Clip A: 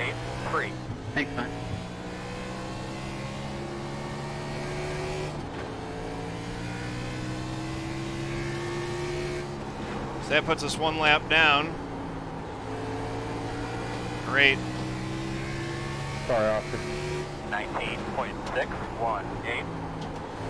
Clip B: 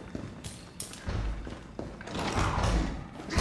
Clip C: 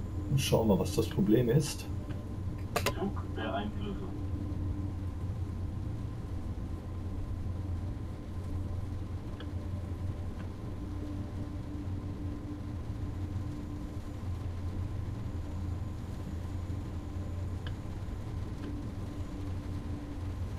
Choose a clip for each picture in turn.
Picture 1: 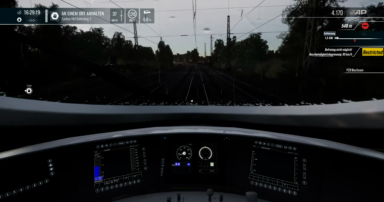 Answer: C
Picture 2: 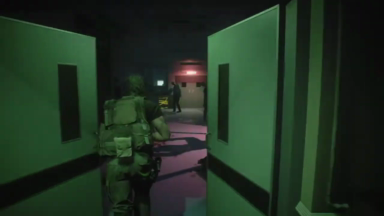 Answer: B